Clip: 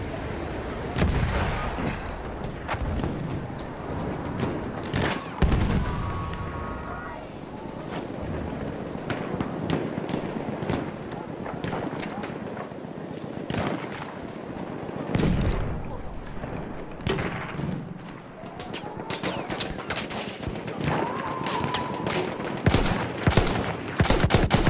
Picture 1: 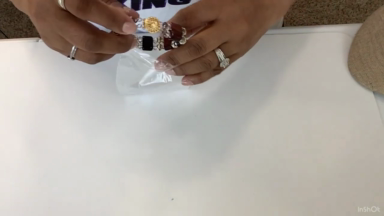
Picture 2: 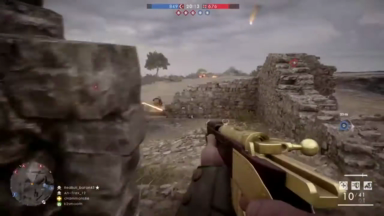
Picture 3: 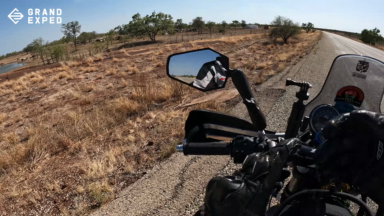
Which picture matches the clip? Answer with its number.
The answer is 2